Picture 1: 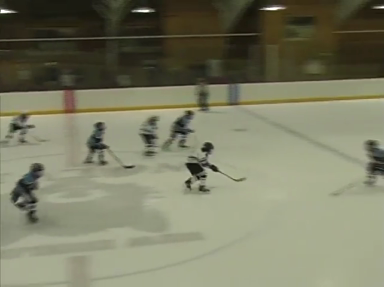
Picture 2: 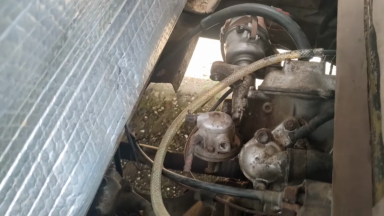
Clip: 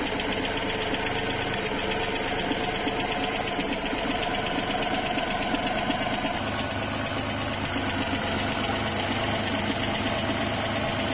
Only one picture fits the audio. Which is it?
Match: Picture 2